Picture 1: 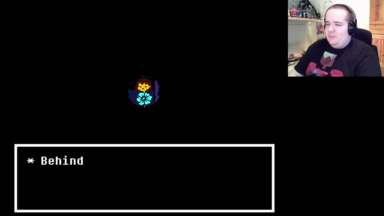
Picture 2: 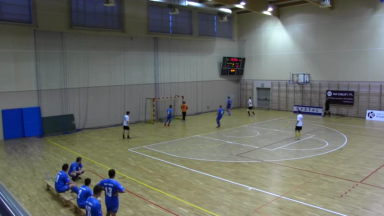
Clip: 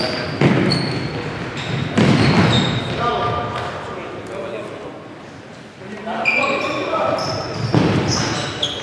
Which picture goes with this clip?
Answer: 2